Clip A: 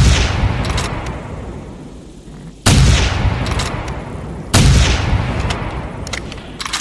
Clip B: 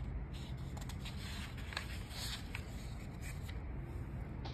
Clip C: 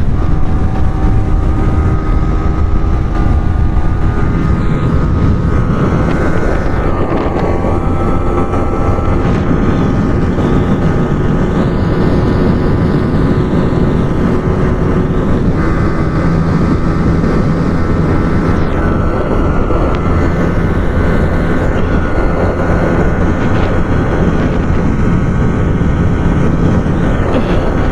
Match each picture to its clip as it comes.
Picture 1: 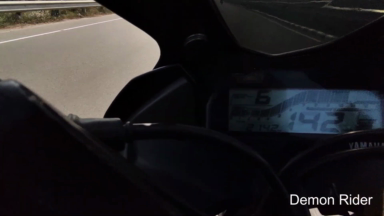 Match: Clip C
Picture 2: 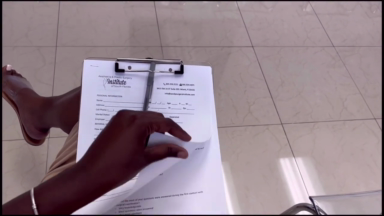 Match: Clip B